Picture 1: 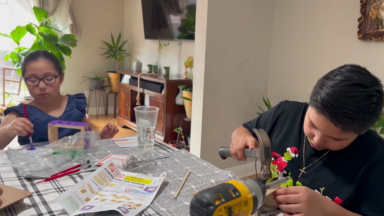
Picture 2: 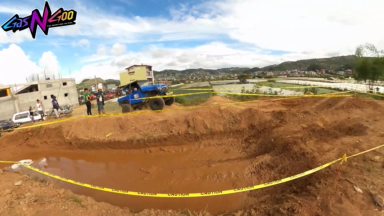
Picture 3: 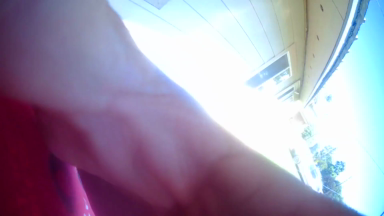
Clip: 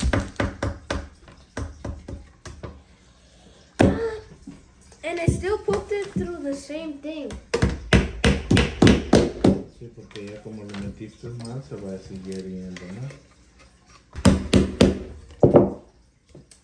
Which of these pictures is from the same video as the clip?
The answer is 1